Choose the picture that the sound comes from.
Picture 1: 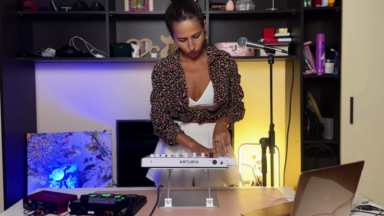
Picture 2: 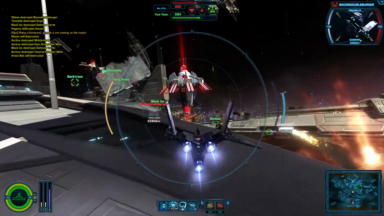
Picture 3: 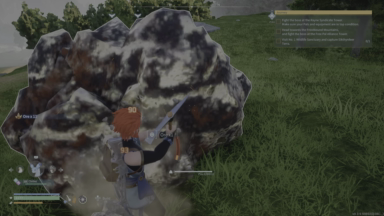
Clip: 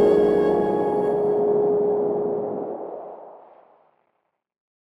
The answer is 1